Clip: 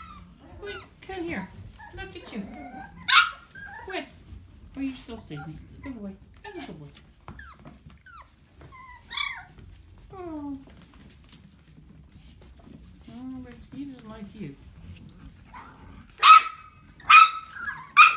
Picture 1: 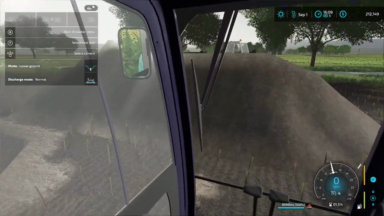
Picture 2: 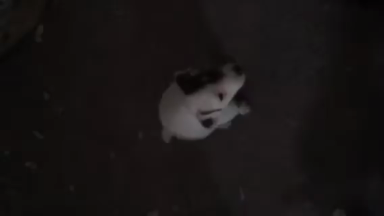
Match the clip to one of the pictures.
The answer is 2